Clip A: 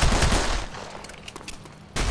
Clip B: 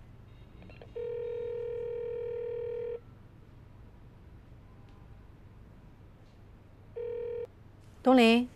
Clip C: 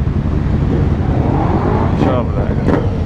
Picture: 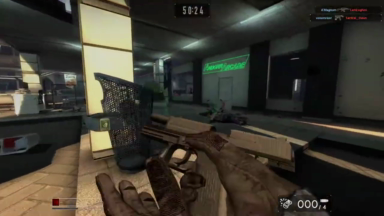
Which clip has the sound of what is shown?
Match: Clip A